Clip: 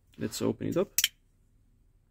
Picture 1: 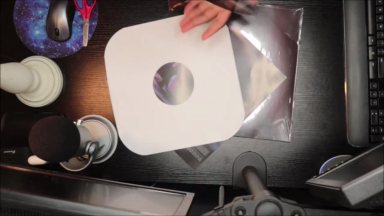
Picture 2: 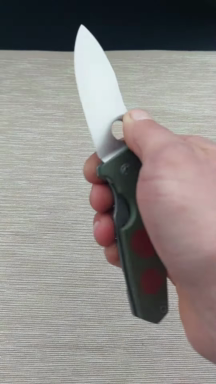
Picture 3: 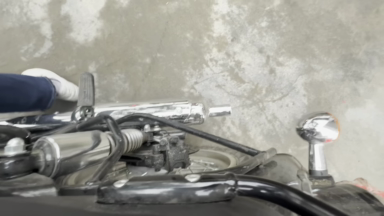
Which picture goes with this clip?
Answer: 2